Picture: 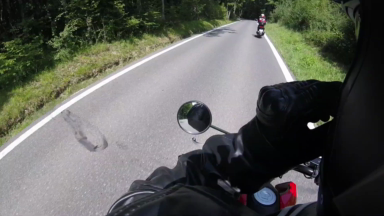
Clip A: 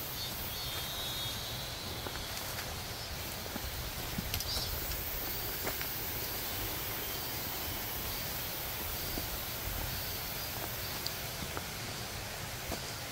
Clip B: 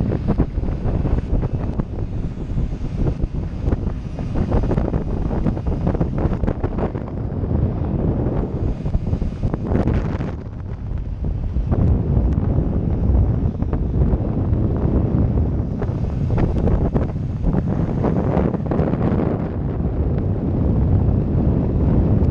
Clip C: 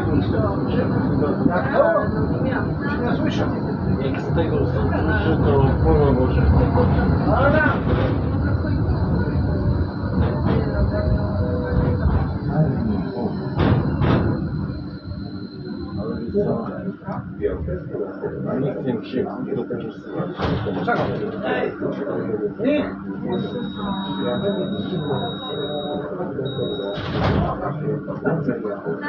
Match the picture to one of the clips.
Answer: B